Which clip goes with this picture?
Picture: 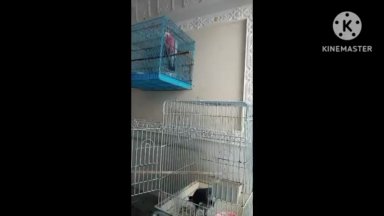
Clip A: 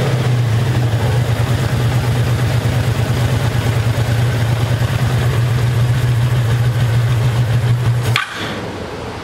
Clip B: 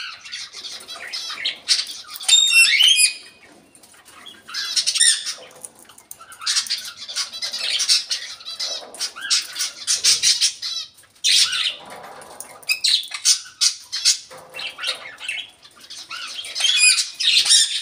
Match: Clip B